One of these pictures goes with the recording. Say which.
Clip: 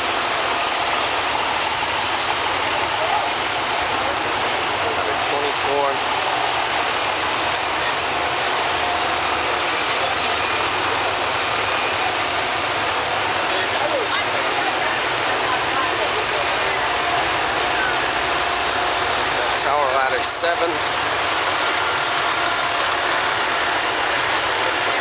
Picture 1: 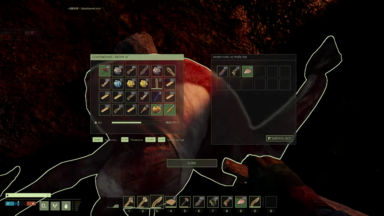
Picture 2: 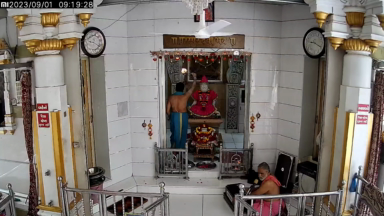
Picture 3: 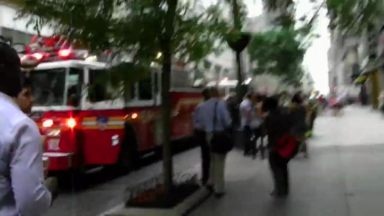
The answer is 3